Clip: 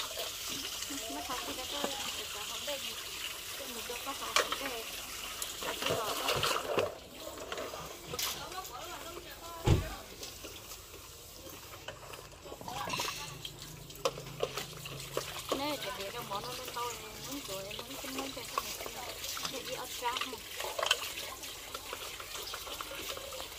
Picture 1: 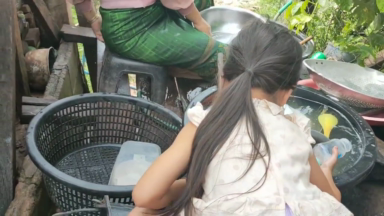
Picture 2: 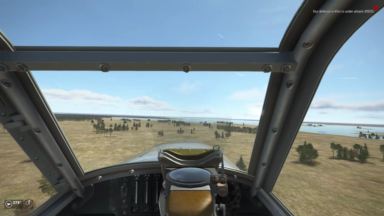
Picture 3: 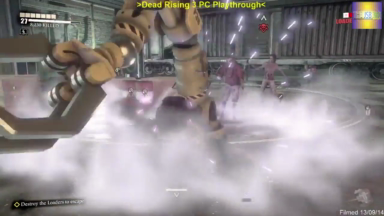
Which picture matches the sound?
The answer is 1